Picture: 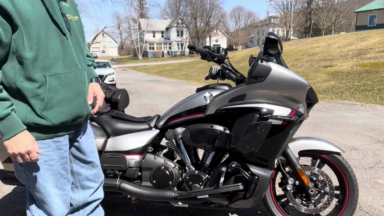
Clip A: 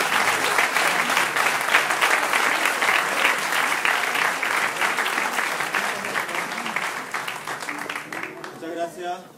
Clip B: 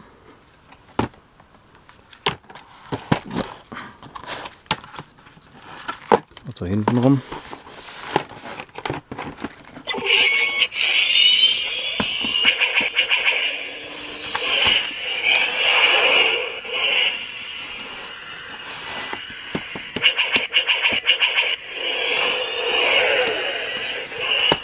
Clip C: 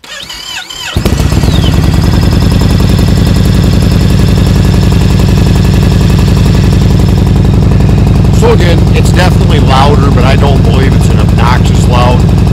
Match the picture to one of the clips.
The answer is C